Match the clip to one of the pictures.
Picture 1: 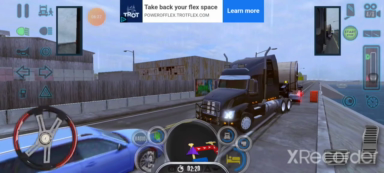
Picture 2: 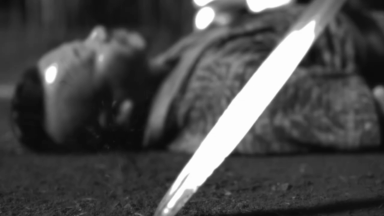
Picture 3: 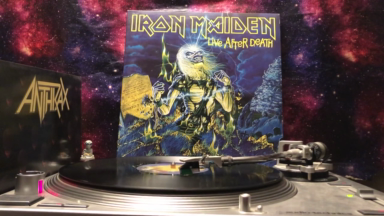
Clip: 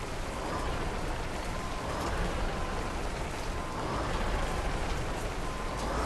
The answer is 1